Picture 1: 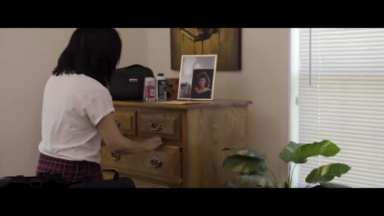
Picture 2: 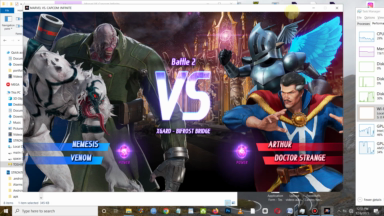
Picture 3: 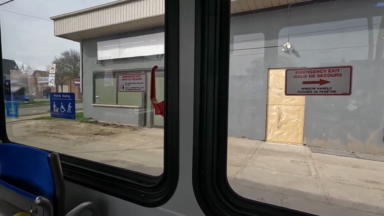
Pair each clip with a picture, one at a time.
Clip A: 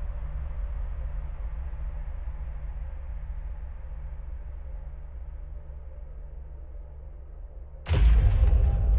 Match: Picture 2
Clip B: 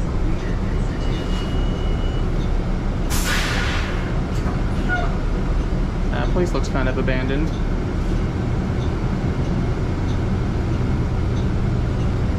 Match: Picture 3